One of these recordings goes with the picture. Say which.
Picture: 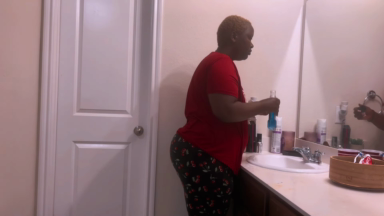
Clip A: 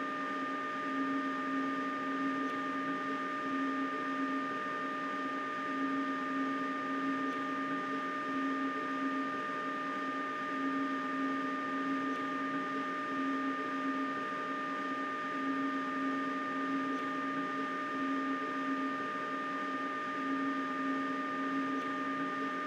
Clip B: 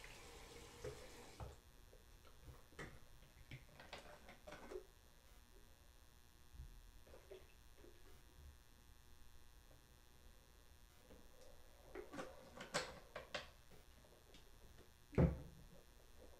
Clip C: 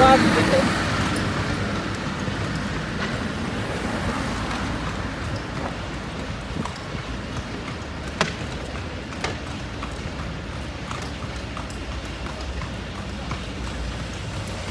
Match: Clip B